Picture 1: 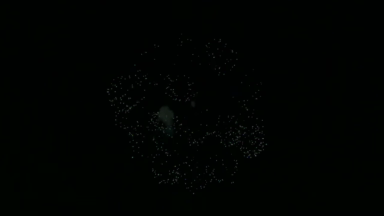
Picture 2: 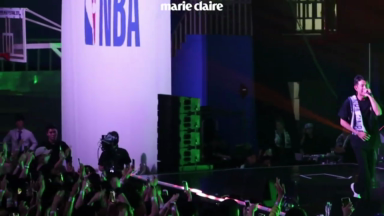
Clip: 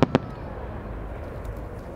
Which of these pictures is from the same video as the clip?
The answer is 1